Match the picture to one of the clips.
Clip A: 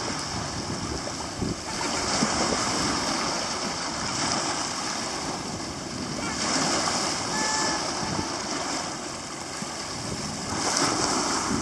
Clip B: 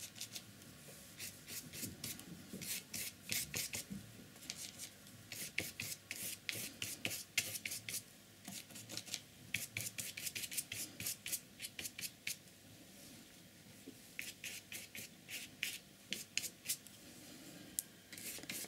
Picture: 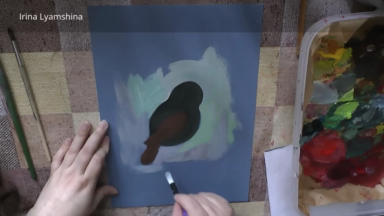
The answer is B